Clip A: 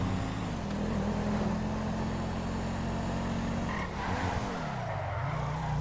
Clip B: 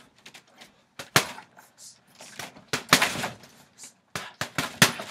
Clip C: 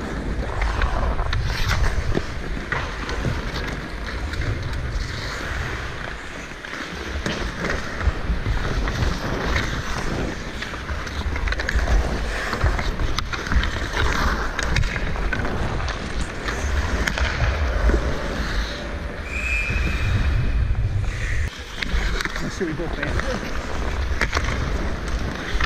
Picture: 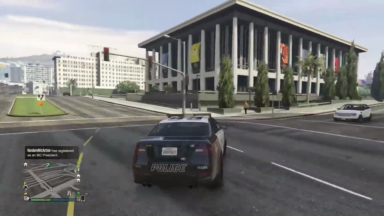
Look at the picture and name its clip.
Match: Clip A